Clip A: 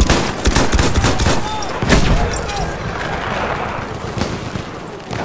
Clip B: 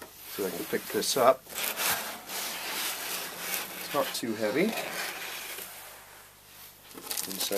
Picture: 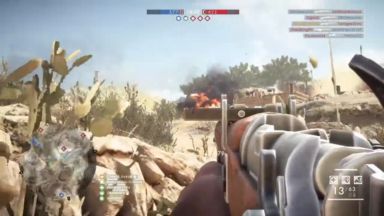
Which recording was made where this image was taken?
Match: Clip A